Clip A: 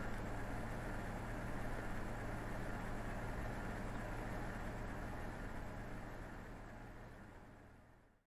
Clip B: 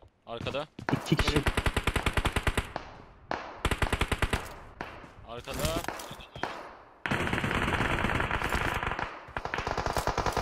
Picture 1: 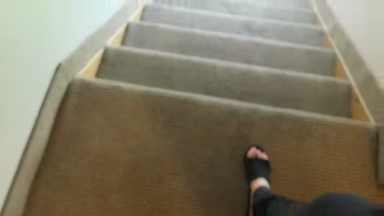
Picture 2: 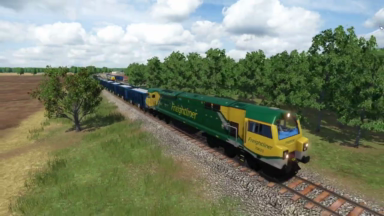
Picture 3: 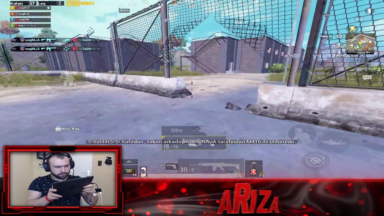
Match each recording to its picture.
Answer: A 2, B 3